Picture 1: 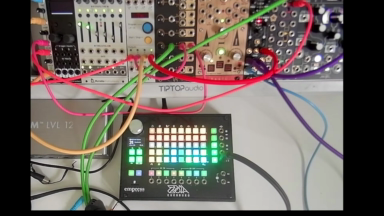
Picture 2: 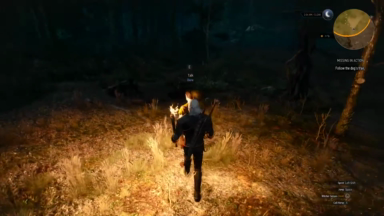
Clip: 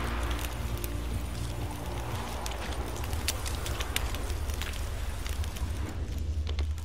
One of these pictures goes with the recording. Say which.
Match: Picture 2